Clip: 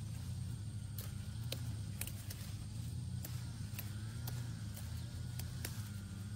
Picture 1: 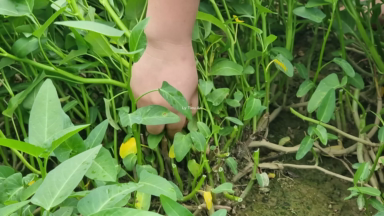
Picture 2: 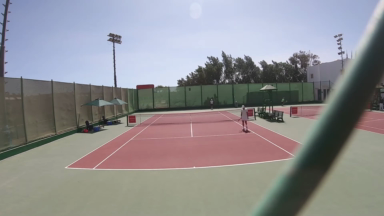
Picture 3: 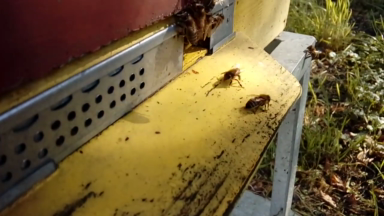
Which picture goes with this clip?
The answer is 1